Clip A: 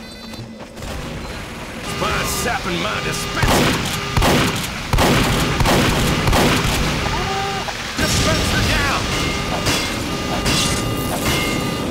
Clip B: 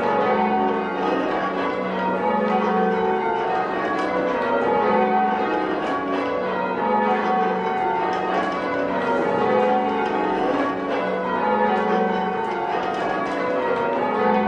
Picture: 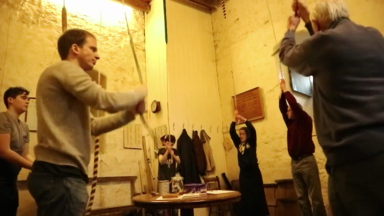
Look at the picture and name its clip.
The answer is B